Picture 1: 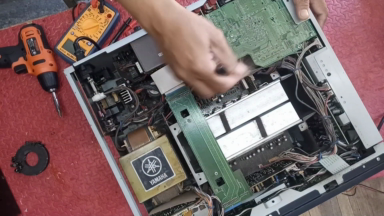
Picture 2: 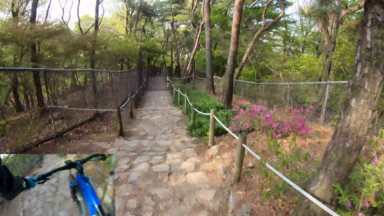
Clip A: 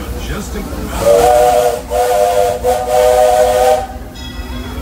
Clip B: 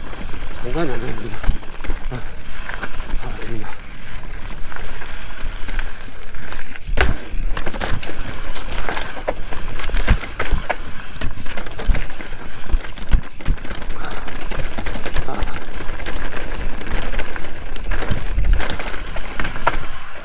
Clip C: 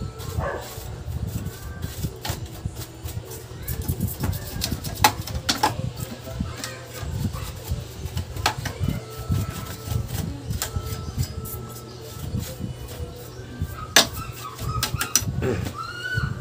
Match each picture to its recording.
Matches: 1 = C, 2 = B